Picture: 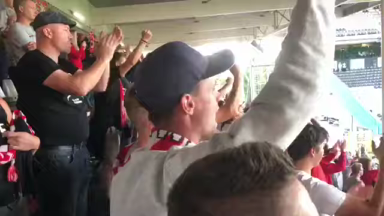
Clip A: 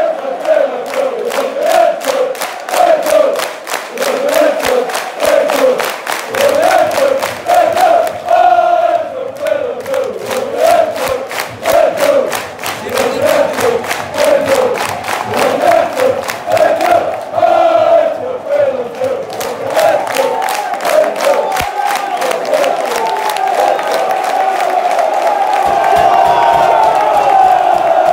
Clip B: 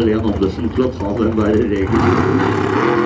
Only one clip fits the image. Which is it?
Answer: A